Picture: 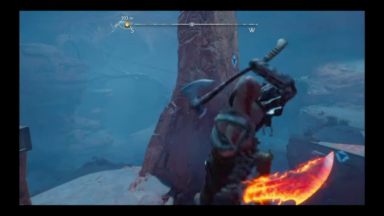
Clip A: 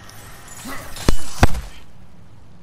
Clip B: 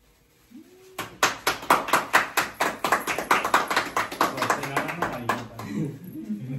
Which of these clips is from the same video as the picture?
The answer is A